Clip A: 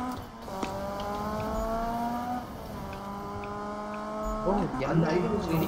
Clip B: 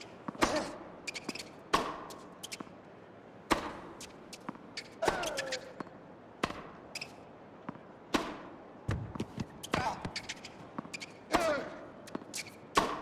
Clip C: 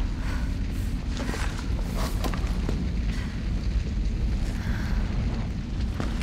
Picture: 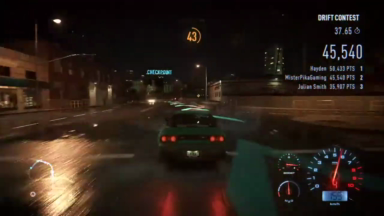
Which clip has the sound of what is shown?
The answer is A